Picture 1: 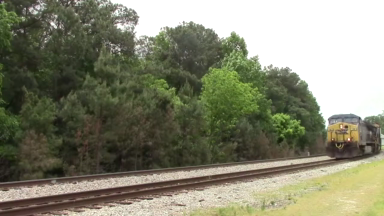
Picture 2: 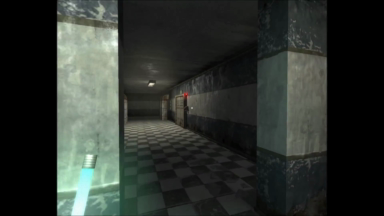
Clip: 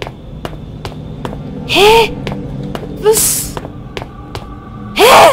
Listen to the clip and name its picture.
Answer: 2